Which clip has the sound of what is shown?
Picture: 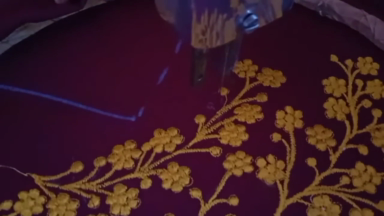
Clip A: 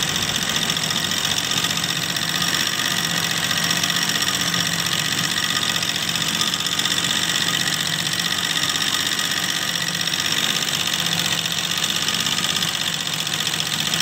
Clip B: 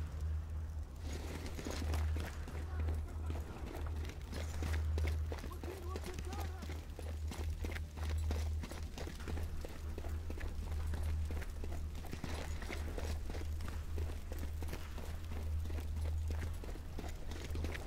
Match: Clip A